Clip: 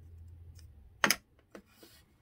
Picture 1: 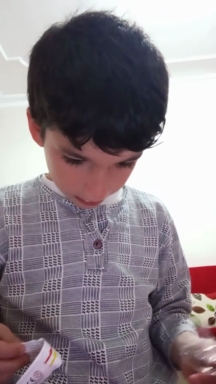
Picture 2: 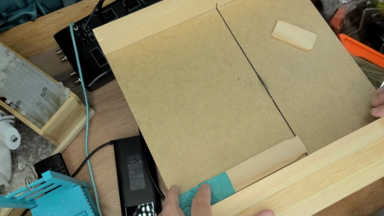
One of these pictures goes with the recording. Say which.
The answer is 2